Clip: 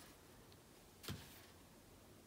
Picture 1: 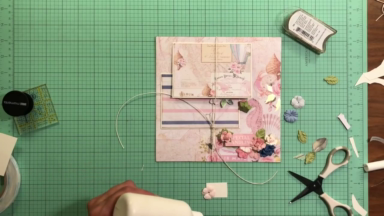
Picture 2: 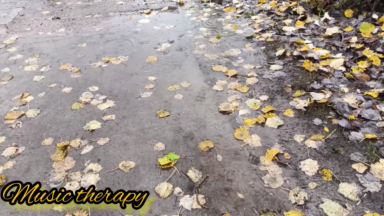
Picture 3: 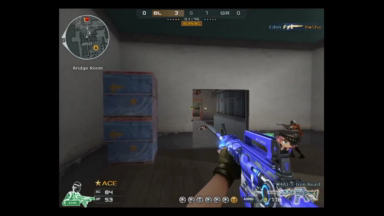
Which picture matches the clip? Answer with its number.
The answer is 1